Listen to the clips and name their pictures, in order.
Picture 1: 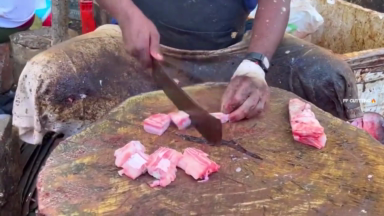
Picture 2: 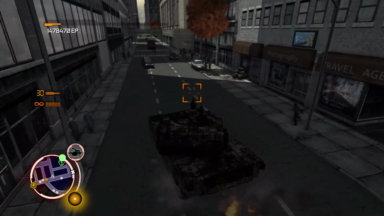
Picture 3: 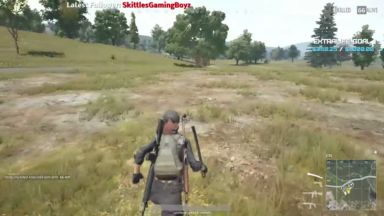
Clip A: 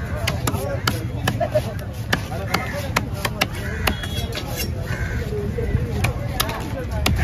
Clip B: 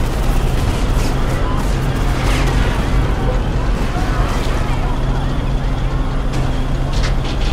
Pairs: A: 1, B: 2